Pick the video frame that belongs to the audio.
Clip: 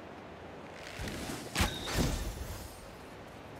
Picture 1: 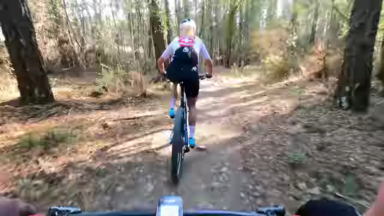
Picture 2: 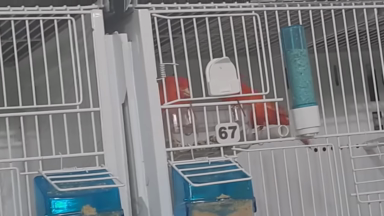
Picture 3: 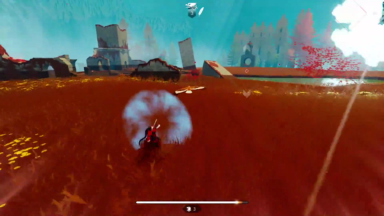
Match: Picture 3